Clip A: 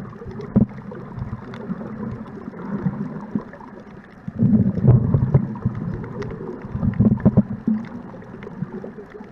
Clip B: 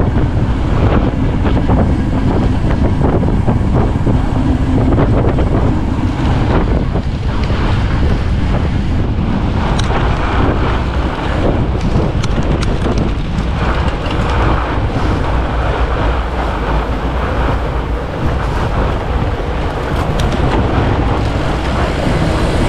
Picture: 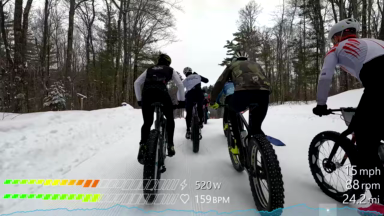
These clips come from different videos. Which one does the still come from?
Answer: B